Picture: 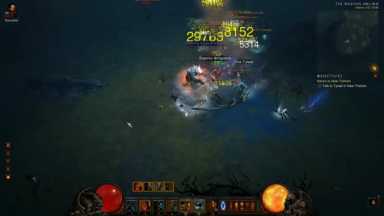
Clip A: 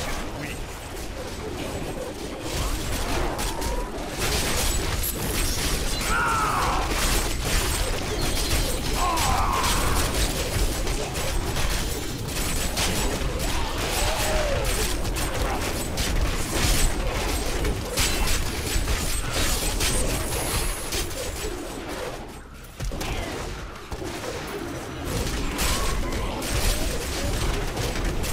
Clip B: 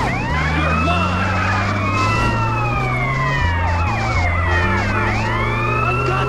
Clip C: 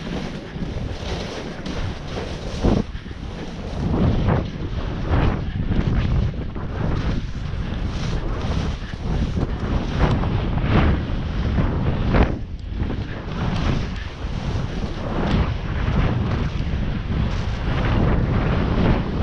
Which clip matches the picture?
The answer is A